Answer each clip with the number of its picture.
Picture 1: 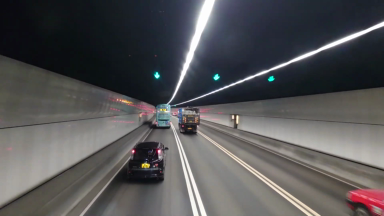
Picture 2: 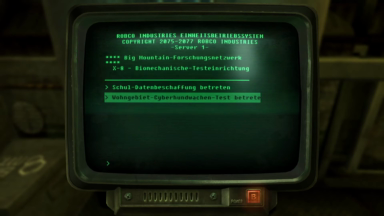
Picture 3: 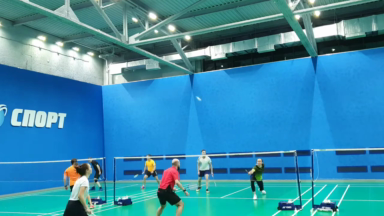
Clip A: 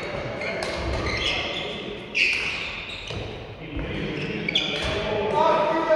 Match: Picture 3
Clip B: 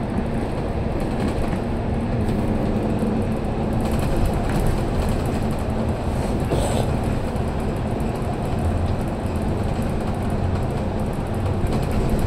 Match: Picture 1